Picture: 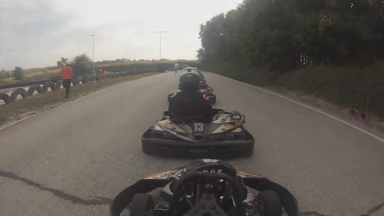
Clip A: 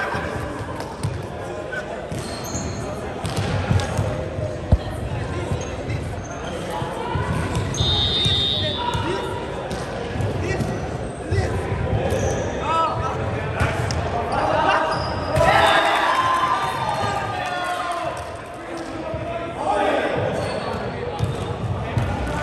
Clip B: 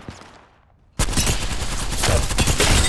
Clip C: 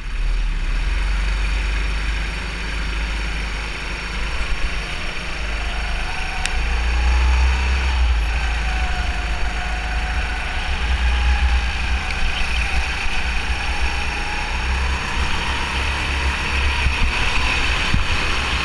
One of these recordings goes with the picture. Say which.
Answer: C